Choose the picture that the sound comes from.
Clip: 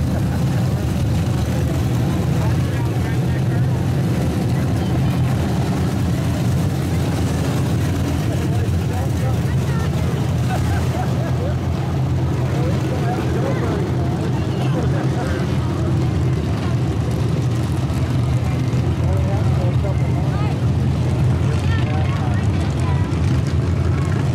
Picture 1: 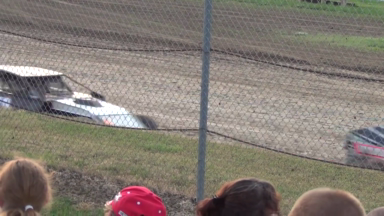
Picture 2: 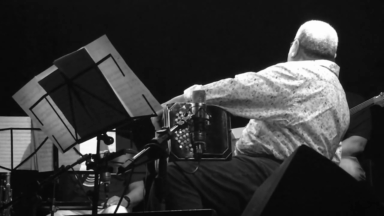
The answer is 1